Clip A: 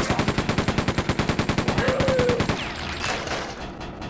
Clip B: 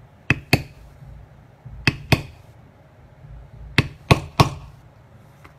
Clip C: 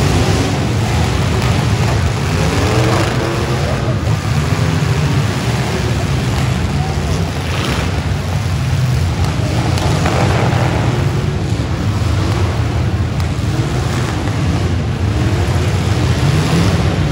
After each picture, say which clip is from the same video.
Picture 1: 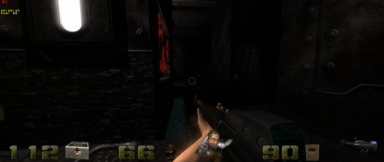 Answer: A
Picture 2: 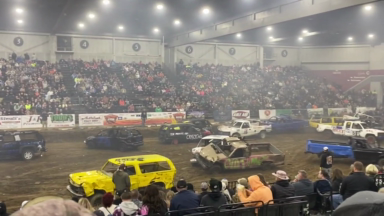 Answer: C